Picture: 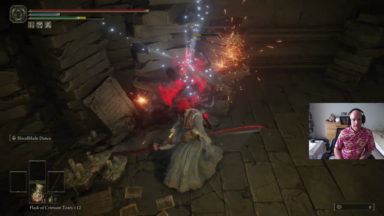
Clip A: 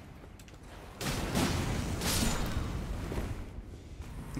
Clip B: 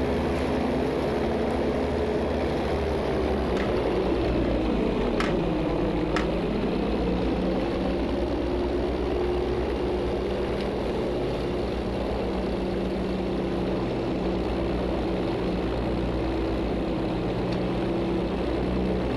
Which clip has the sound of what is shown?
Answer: A